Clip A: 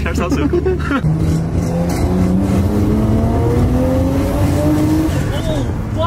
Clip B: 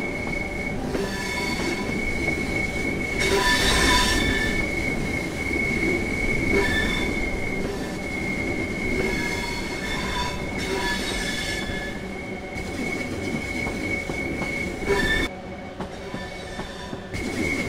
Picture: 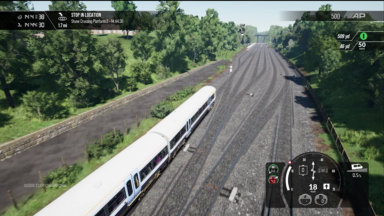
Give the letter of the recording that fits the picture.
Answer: B